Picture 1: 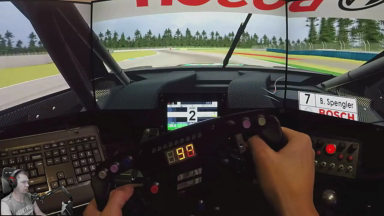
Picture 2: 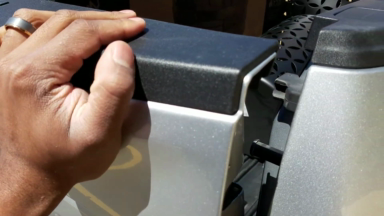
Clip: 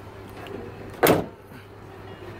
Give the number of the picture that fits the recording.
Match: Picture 2